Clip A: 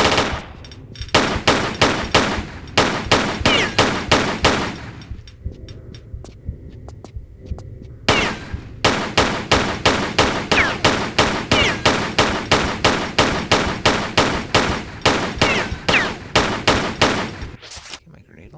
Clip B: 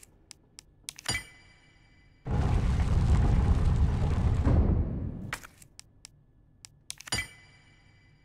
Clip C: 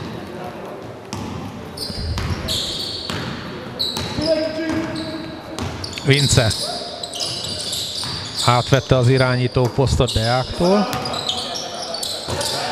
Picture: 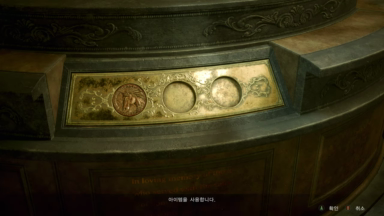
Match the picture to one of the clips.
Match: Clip B